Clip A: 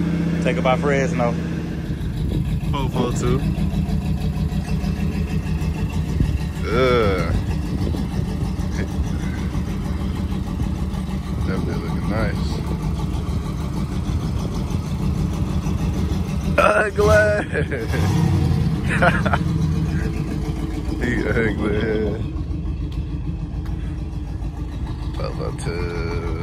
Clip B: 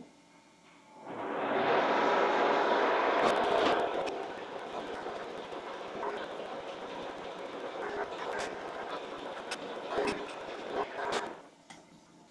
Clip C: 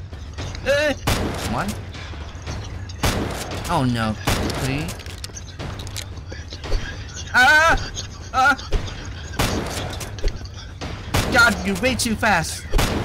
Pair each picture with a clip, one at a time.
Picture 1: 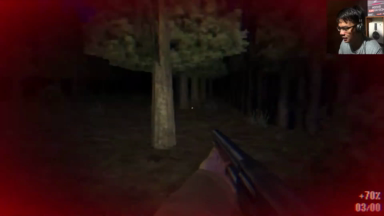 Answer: C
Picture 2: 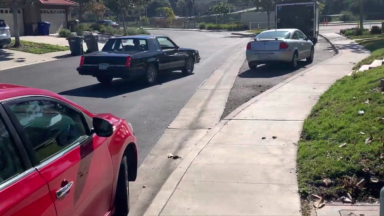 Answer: A